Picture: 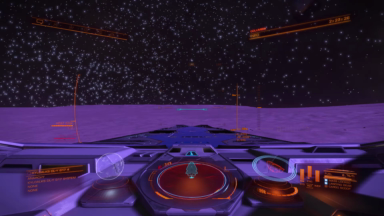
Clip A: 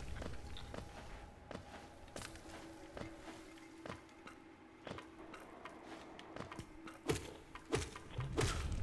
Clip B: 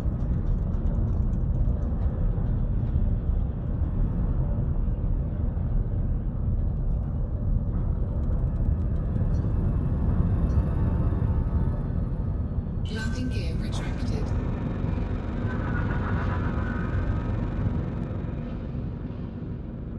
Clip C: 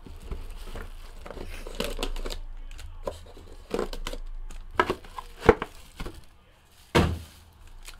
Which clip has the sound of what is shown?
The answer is B